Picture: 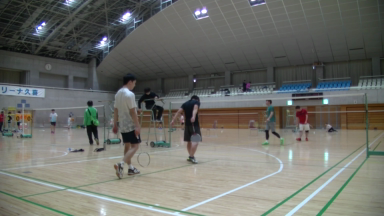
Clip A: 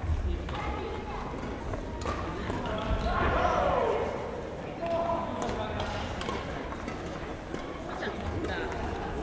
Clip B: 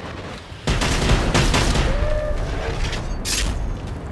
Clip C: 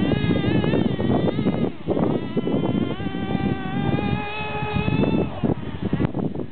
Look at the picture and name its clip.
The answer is A